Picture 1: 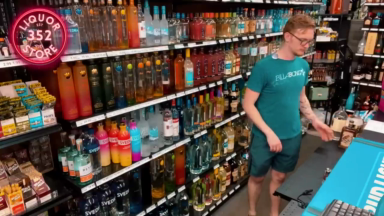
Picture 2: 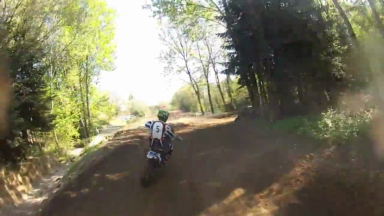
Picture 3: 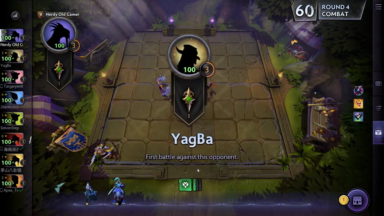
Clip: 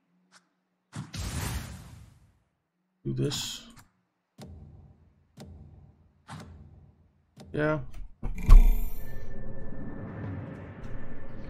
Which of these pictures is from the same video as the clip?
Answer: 3